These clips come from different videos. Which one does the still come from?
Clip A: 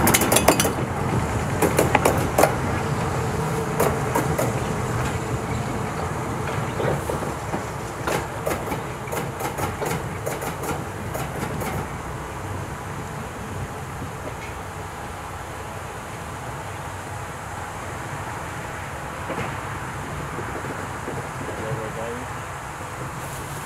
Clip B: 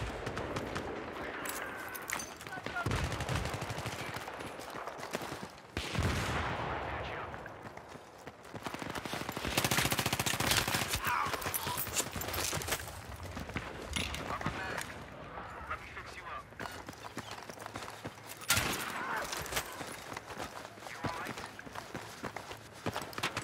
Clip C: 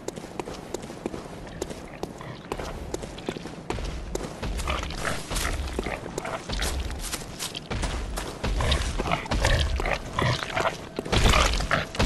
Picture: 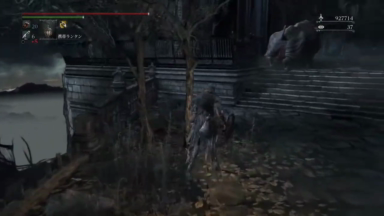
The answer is C